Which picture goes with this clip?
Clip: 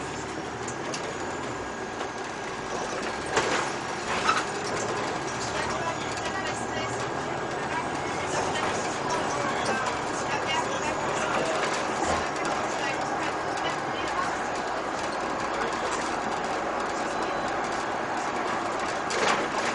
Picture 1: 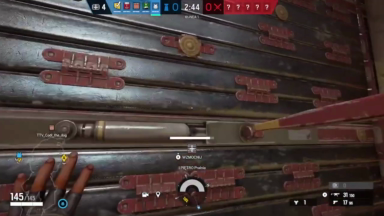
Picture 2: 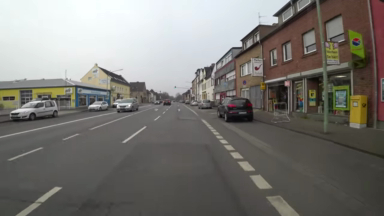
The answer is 2